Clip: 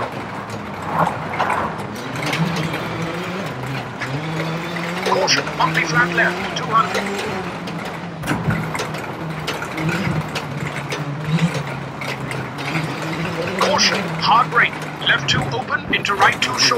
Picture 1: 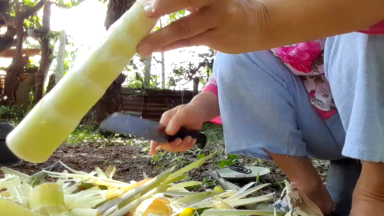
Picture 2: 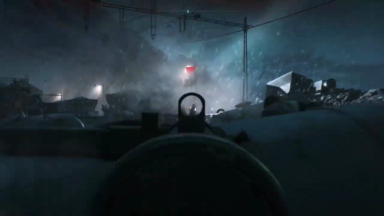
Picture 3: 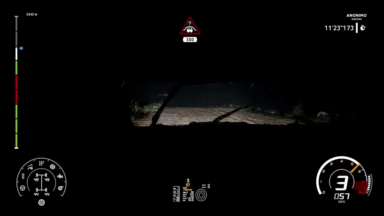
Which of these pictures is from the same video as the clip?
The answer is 3